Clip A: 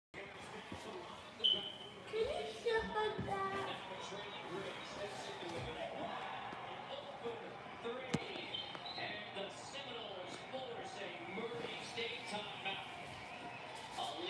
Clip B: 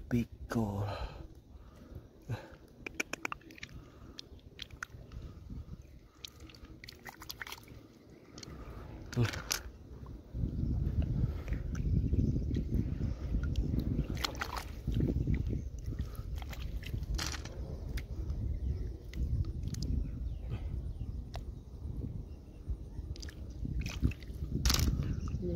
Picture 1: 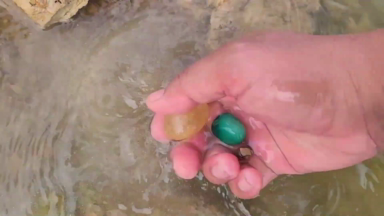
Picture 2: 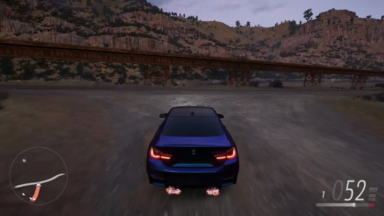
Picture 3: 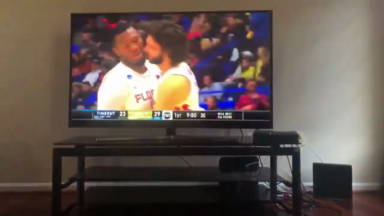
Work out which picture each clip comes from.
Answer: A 3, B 1